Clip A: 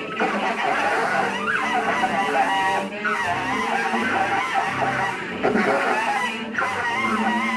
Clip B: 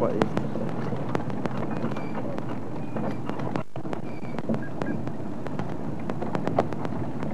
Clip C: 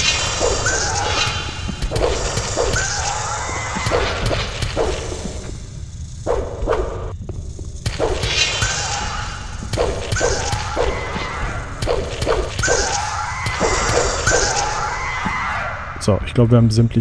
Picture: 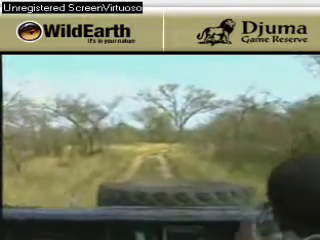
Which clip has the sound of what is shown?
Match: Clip B